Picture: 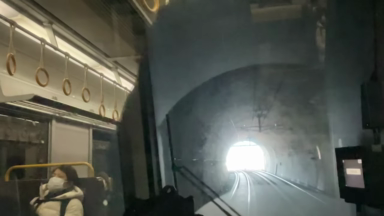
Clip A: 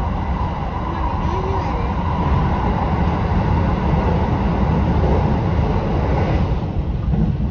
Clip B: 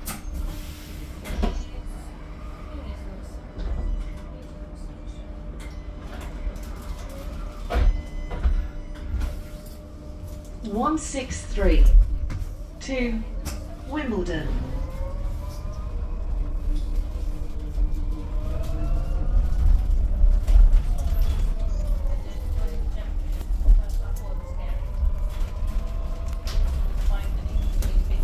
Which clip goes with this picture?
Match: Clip A